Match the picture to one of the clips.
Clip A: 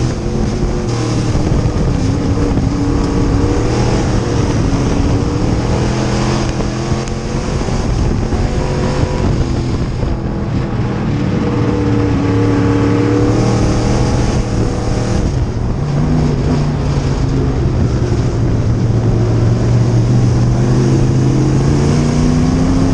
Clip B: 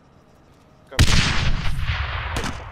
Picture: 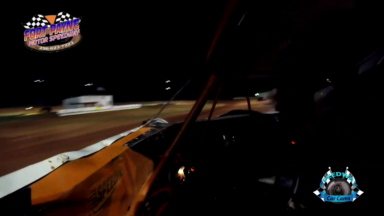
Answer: A